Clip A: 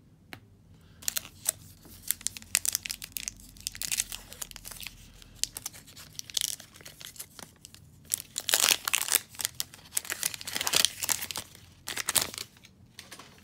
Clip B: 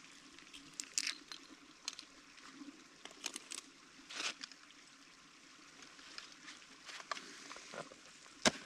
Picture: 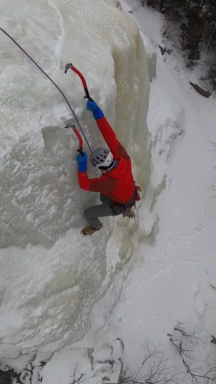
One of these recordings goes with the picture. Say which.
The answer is B